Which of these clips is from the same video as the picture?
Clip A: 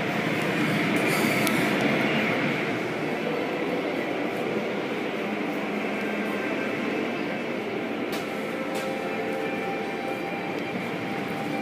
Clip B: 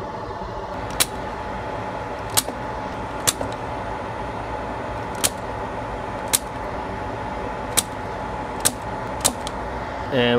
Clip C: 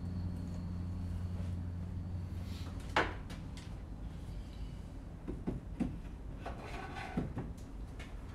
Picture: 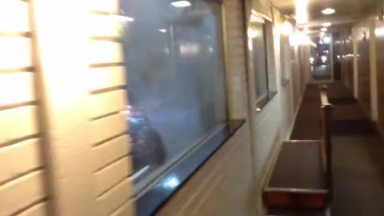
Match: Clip A